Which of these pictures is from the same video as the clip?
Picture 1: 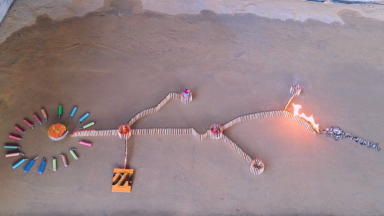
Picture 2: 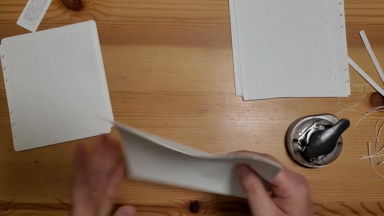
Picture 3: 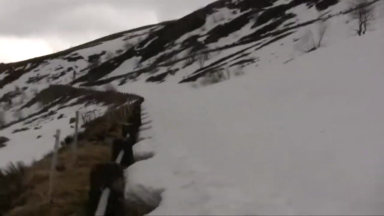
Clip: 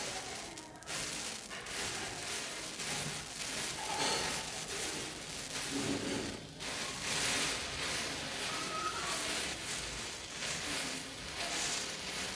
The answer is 1